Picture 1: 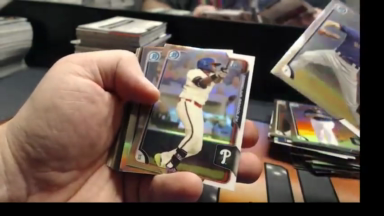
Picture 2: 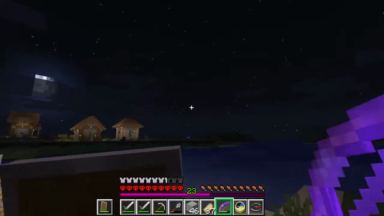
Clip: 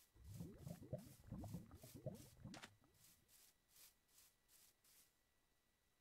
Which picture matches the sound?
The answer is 2